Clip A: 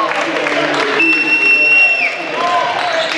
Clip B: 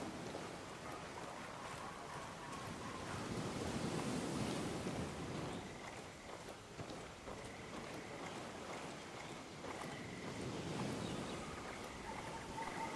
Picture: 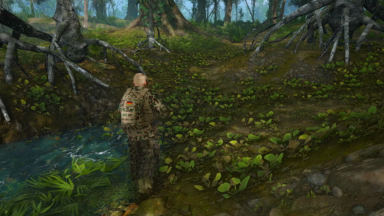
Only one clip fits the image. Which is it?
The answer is B